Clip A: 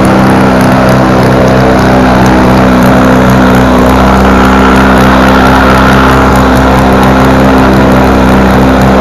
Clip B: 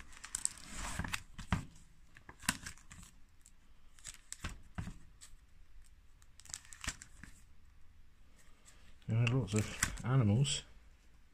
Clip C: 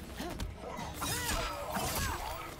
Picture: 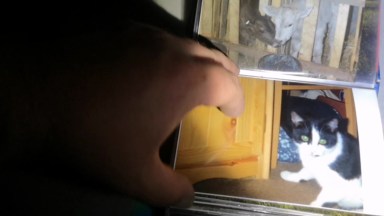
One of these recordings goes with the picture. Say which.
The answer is B